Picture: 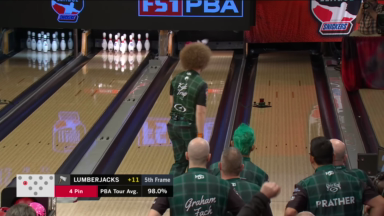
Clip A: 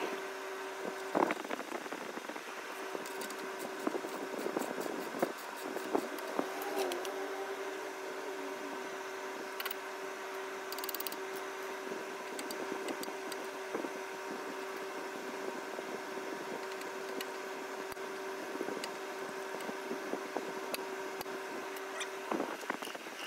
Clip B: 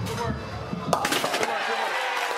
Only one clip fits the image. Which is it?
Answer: B